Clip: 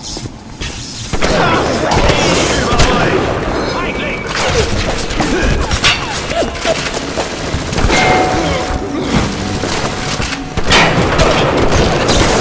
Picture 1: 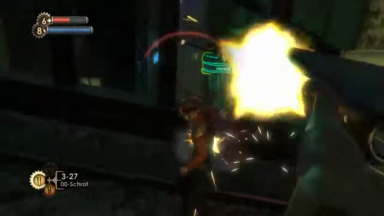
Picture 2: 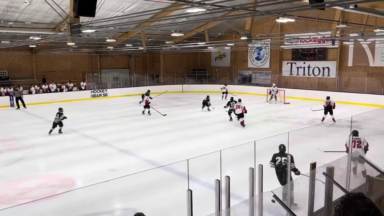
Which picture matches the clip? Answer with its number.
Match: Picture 1